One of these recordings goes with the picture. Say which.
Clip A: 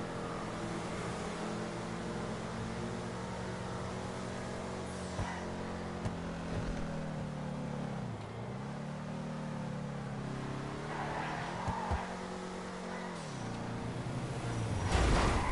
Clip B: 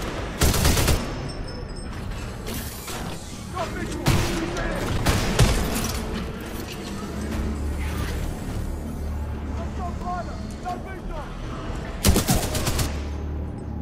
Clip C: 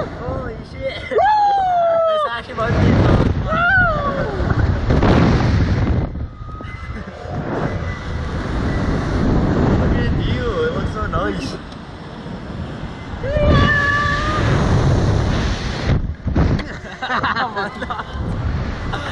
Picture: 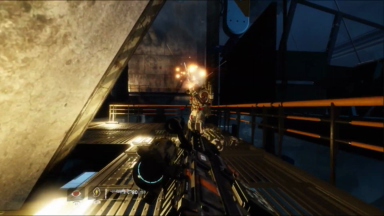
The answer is B